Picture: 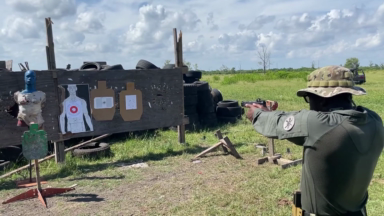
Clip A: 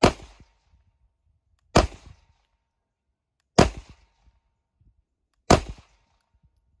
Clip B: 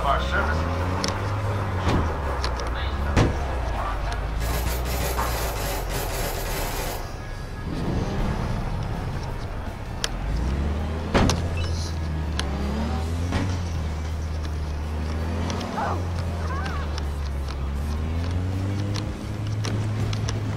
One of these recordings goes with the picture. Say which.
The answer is A